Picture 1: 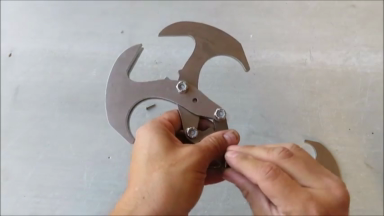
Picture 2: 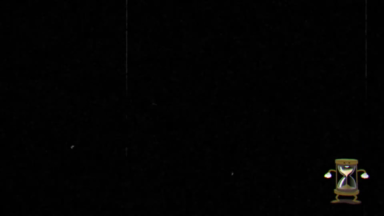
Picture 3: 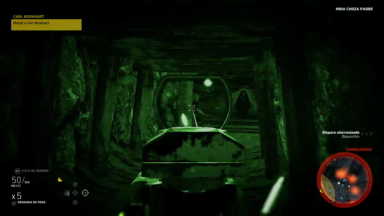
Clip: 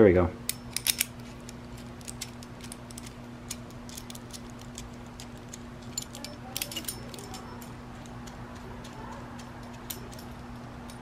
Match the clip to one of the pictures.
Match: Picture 1